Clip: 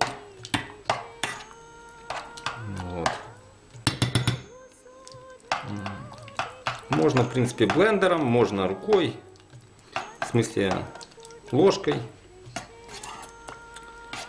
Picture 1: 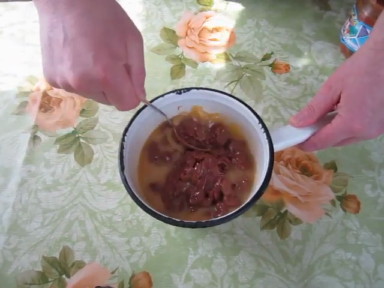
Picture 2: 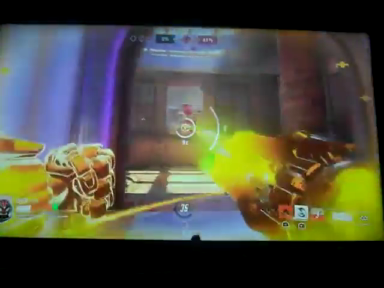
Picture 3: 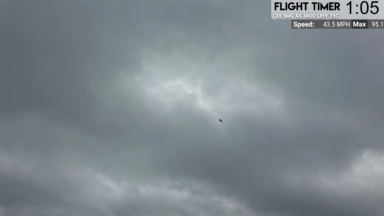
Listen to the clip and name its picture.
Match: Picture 1